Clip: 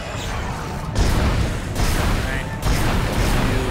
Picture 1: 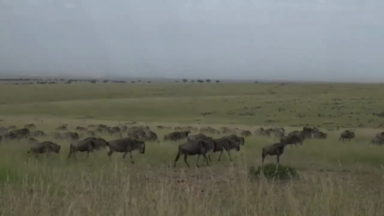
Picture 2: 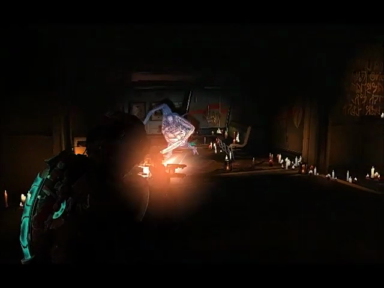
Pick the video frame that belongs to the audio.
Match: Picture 2